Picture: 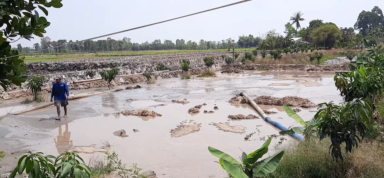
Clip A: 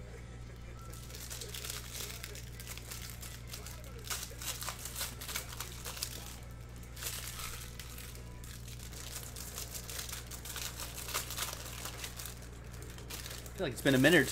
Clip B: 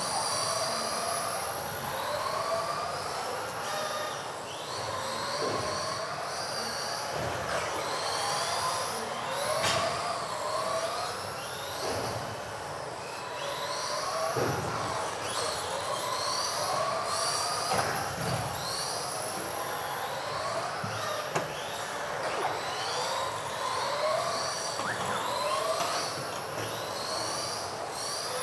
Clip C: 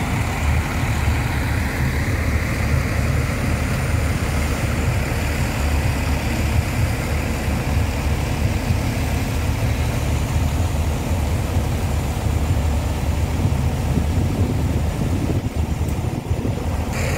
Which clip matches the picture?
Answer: C